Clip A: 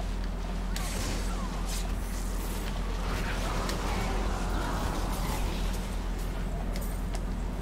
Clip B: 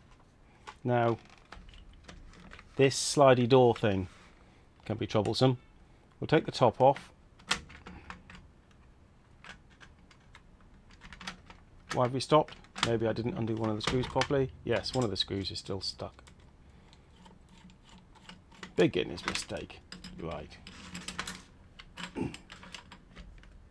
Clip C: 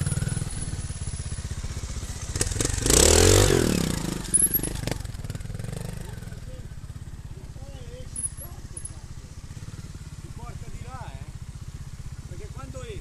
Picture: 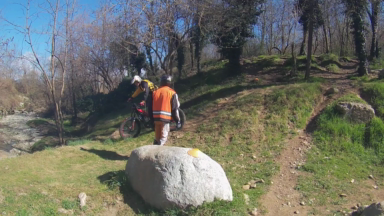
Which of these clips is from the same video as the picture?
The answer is C